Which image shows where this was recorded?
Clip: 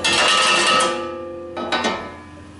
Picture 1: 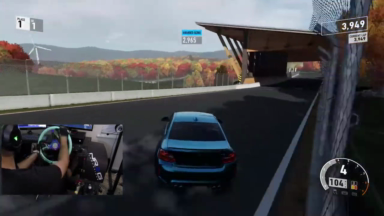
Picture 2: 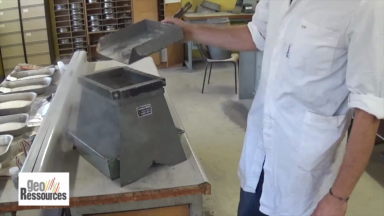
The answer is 2